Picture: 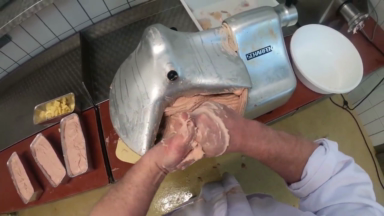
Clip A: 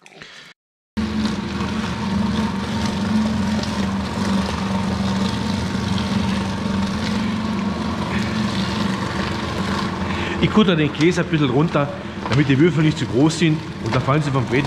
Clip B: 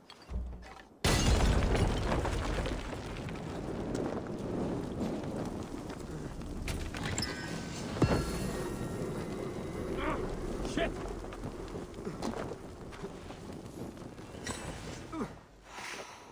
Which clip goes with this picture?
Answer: A